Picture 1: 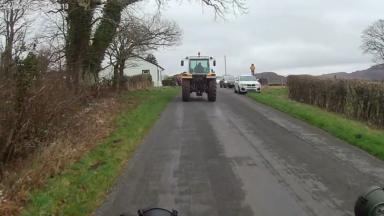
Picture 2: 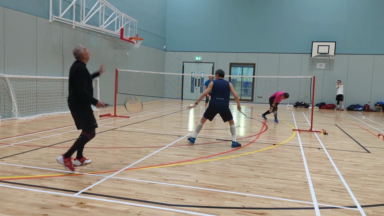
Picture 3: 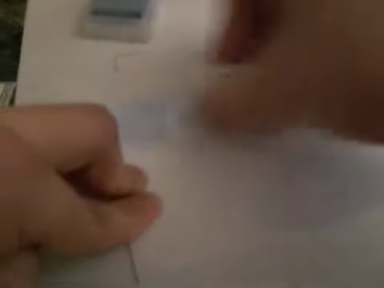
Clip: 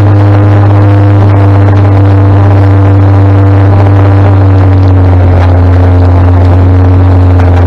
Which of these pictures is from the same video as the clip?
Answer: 1